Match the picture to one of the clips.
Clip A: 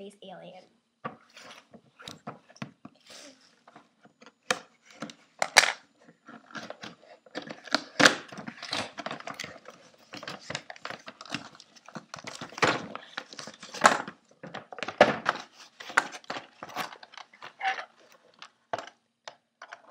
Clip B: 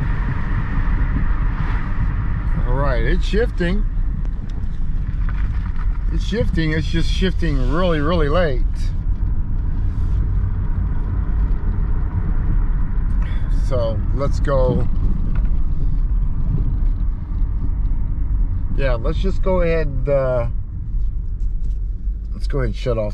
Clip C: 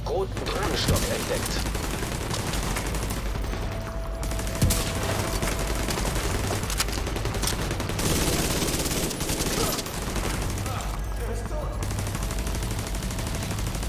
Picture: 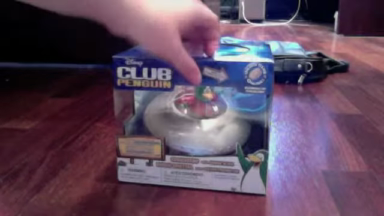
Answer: A